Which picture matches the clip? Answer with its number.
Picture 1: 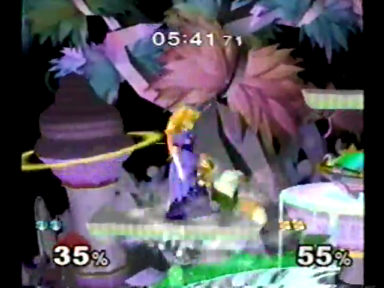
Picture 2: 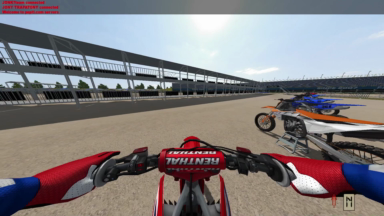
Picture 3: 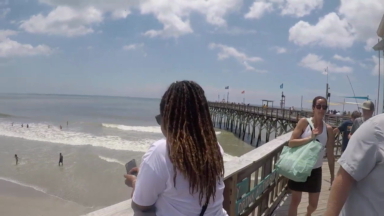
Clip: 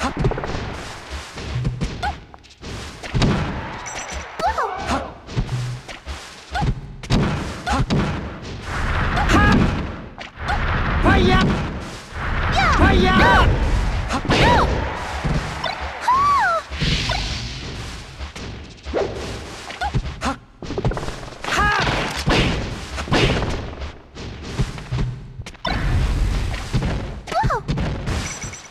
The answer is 1